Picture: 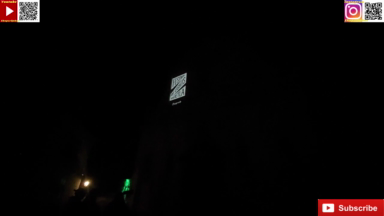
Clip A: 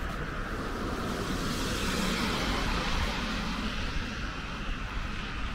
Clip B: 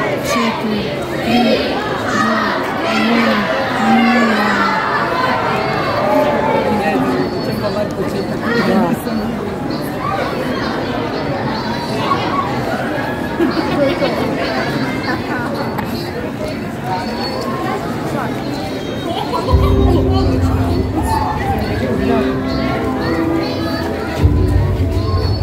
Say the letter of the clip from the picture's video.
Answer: B